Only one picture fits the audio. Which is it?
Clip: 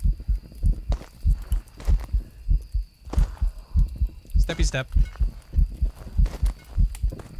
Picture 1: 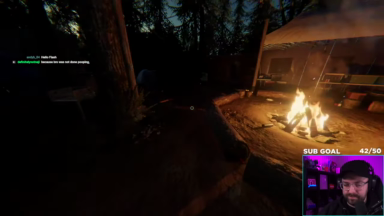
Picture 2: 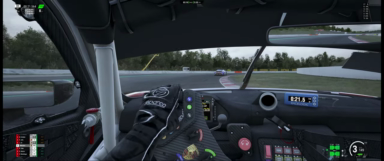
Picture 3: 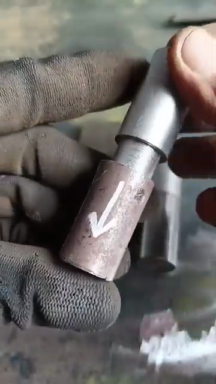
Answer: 1